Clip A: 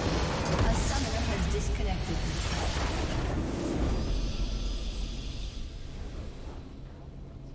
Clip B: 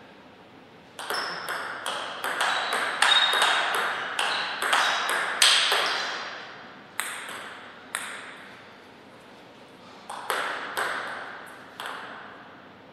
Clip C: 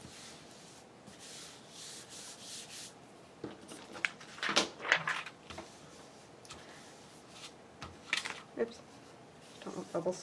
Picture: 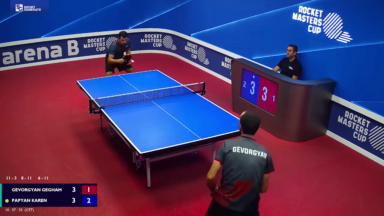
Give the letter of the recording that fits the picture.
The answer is B